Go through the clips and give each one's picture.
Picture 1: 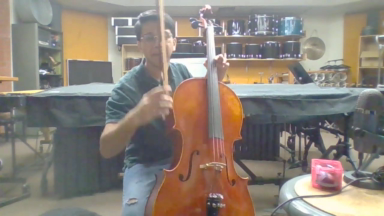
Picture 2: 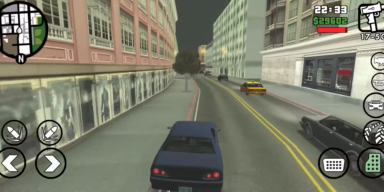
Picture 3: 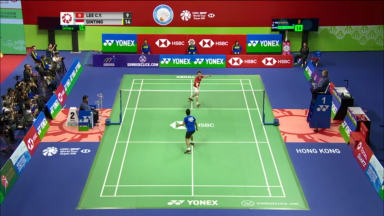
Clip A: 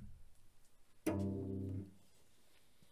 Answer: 1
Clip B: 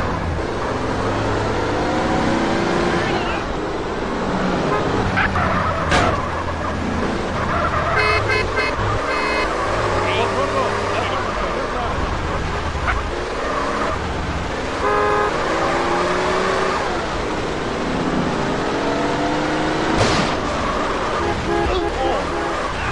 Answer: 2